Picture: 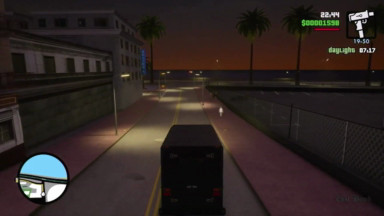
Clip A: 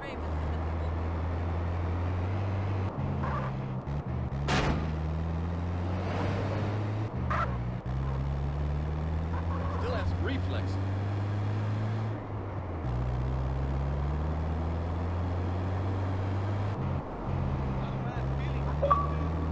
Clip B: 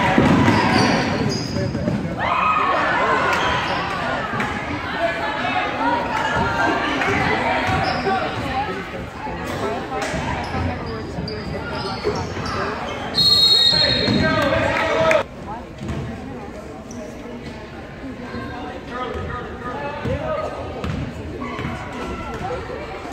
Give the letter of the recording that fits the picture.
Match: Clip A